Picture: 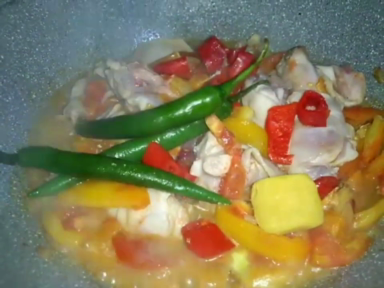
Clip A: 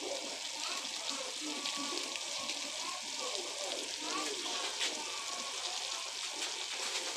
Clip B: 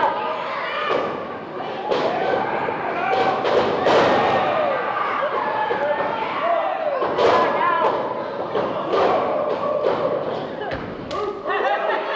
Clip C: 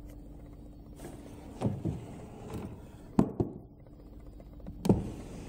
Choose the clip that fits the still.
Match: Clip A